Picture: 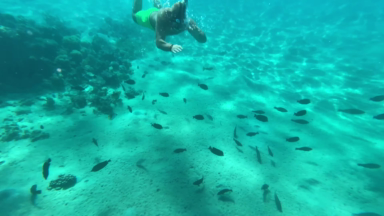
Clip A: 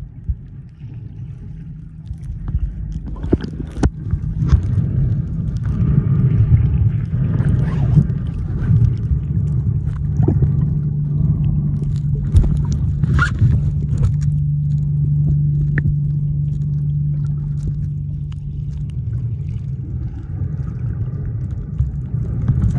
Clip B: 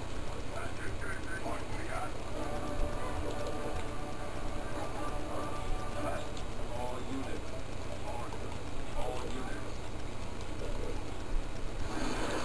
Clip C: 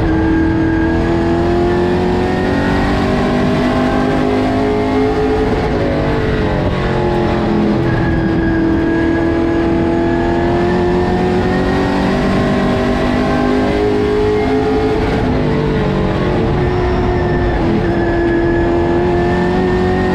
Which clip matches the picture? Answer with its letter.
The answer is A